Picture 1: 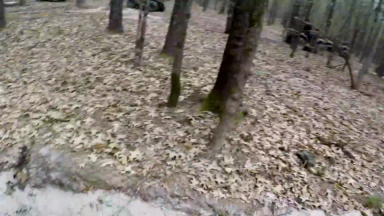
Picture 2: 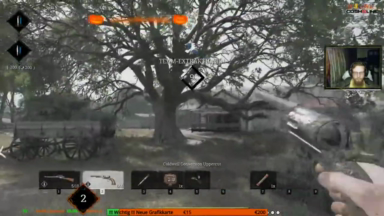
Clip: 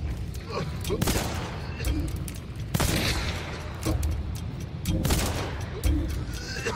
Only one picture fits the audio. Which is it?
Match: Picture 2